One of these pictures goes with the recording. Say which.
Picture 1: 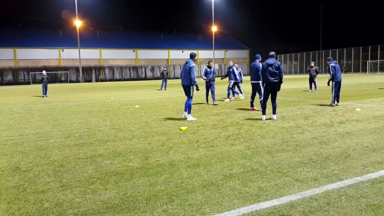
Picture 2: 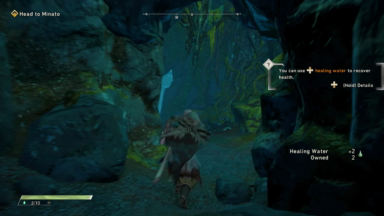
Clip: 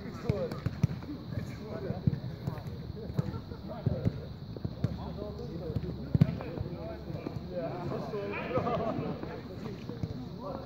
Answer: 1